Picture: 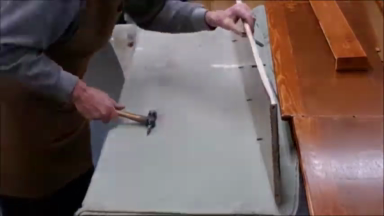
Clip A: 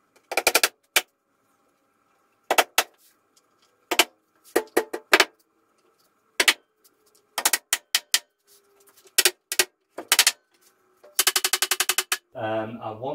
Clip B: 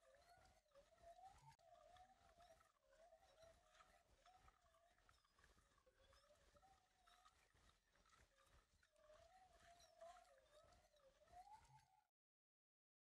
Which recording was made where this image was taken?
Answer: A